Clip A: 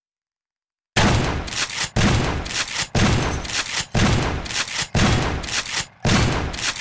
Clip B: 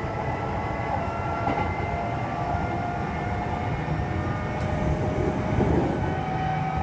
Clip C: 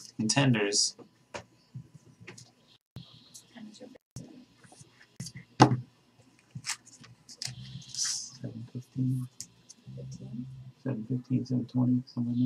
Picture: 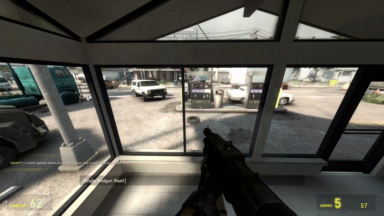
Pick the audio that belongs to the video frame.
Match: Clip A